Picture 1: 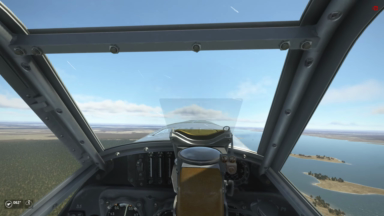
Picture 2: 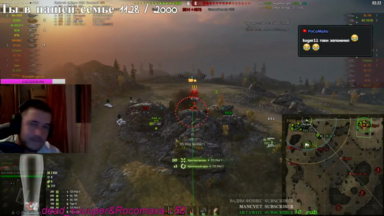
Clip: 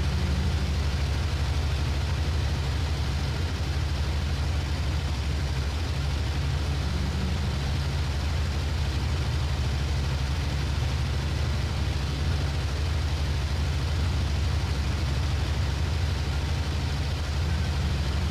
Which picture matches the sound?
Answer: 1